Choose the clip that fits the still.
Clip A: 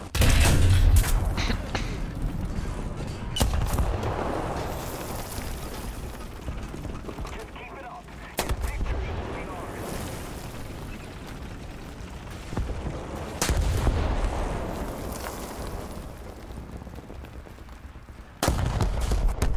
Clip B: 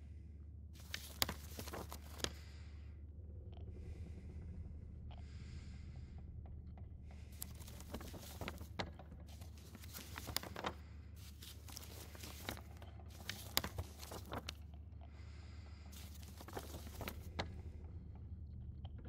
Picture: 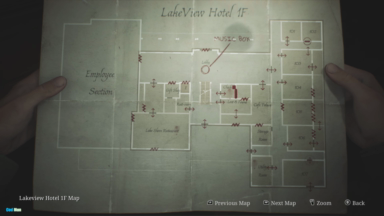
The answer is B